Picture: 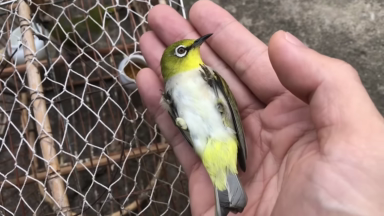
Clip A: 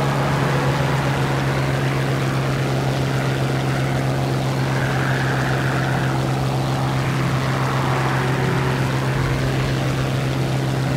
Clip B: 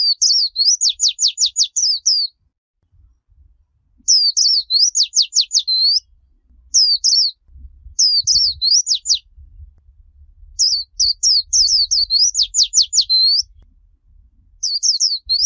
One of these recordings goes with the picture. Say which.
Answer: B